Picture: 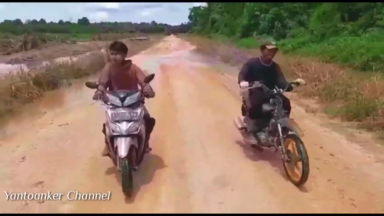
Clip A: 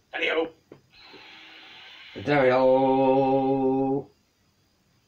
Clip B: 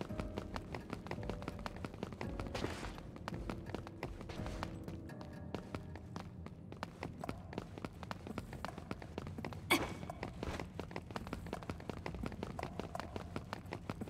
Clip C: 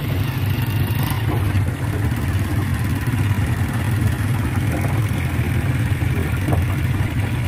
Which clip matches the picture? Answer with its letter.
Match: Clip C